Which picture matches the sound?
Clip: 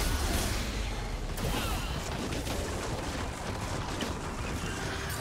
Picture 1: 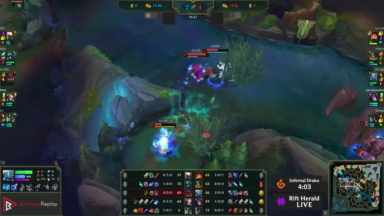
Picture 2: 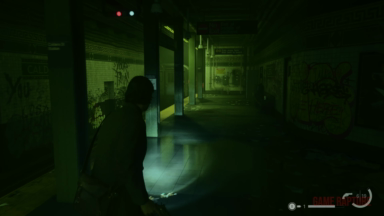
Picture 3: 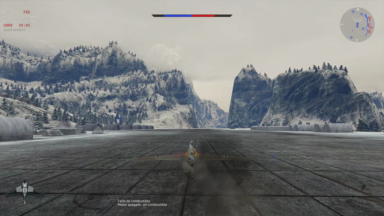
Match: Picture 1